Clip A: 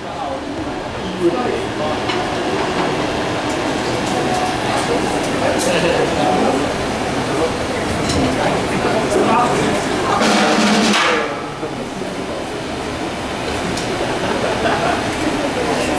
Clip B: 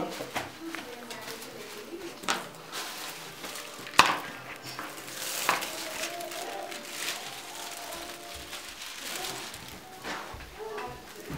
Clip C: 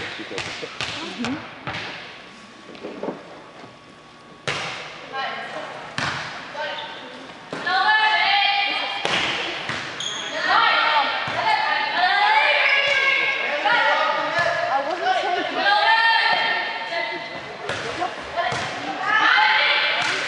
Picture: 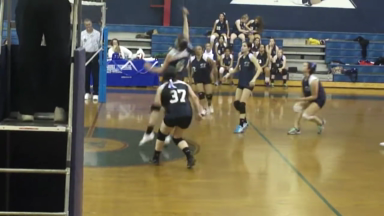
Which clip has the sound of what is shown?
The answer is C